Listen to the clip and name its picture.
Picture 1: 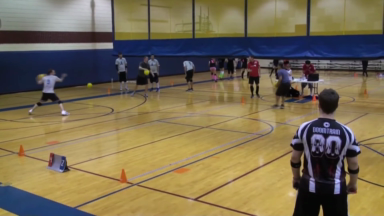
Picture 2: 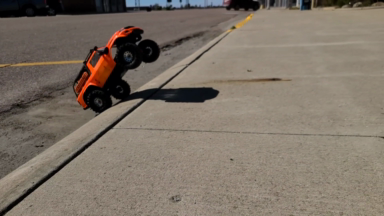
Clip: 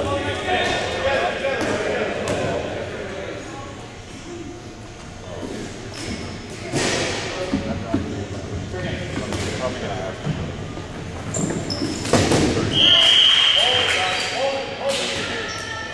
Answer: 1